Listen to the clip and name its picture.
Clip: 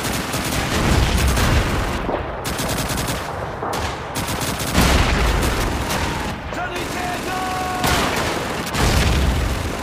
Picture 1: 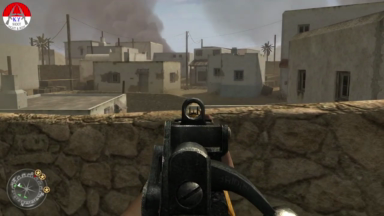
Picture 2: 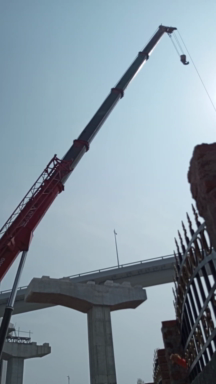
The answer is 1